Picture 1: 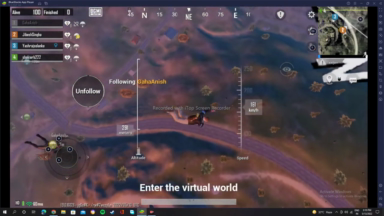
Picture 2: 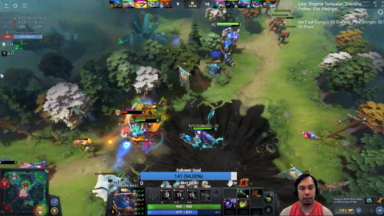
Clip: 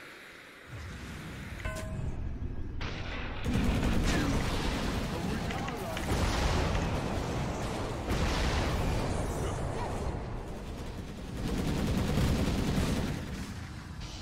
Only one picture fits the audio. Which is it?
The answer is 2